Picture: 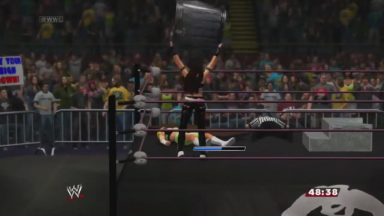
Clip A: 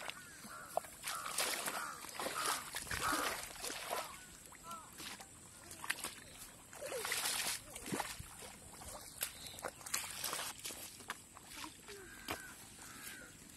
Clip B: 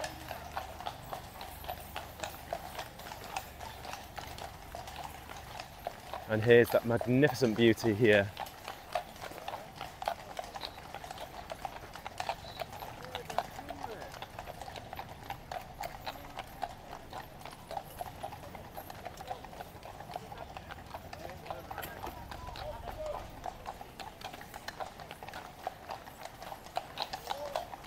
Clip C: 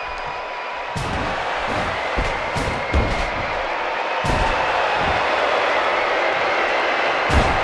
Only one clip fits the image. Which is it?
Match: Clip C